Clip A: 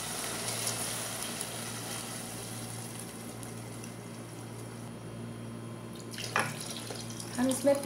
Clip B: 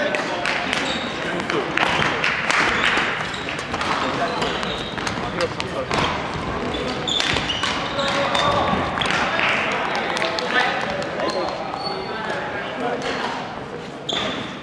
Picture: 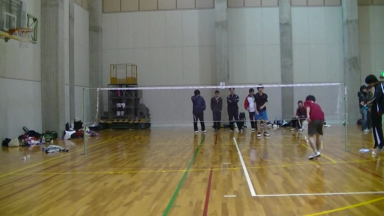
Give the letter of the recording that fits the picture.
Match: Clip B